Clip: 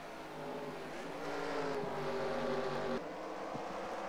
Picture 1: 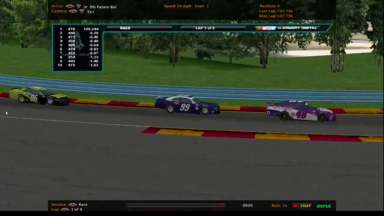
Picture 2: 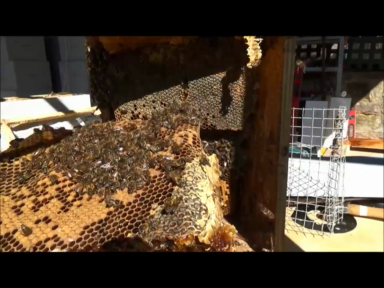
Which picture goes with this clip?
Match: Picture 1